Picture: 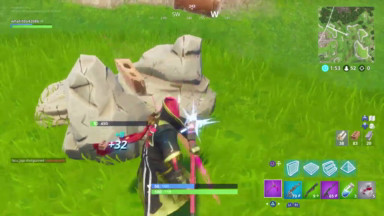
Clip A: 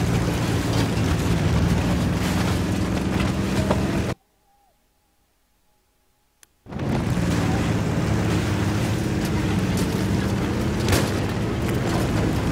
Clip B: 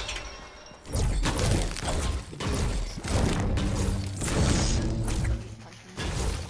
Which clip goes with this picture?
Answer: B